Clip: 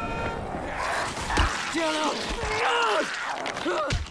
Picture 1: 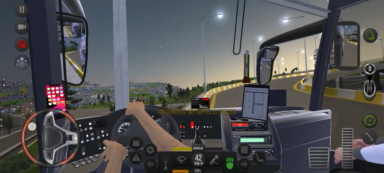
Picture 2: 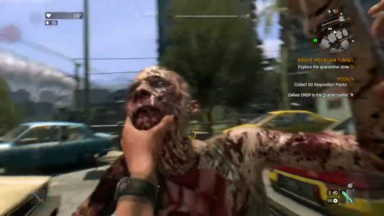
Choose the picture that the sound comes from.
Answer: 2